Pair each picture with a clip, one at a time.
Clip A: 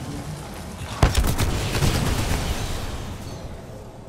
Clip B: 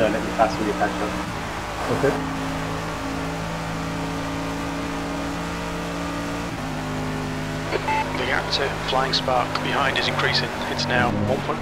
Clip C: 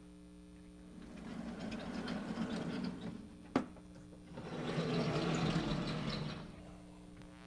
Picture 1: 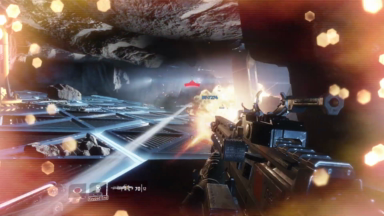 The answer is A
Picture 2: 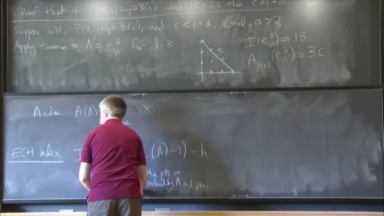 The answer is C